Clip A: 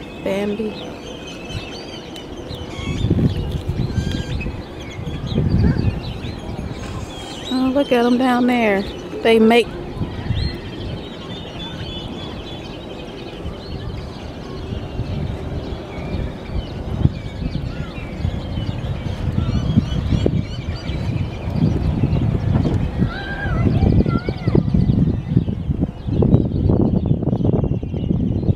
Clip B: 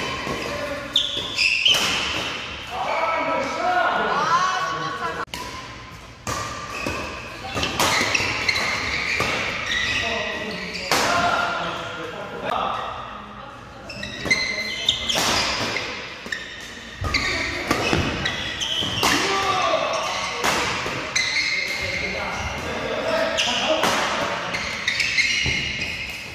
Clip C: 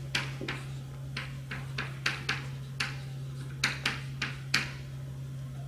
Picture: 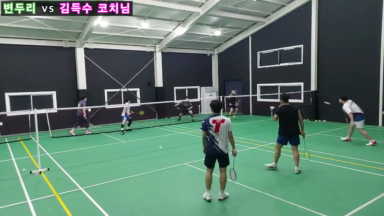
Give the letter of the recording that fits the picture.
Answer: B